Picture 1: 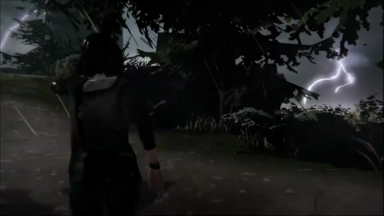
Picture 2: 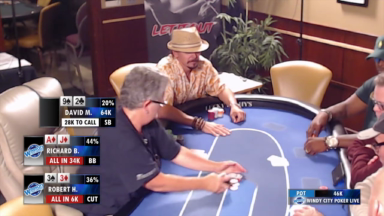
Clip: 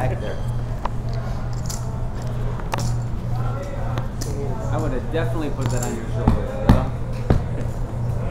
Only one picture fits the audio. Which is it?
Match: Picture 2